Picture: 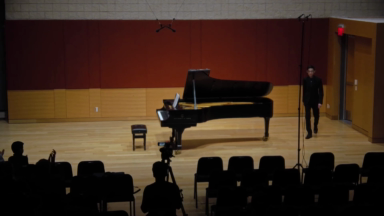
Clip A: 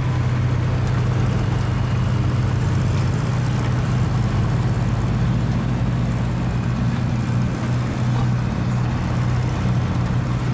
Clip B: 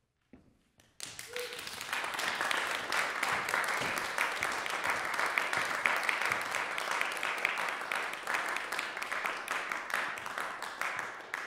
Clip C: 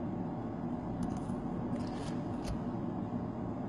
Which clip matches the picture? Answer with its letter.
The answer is B